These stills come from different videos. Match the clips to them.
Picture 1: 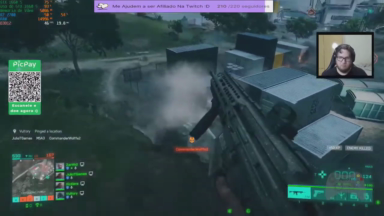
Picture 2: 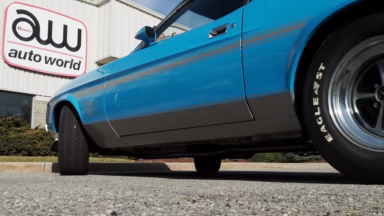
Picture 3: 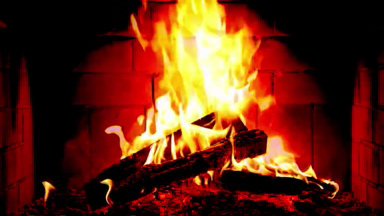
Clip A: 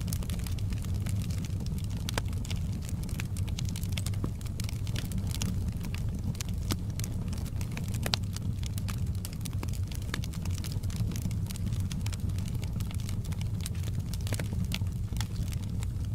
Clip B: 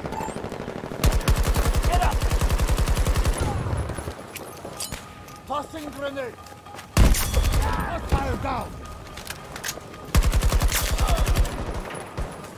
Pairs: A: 3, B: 1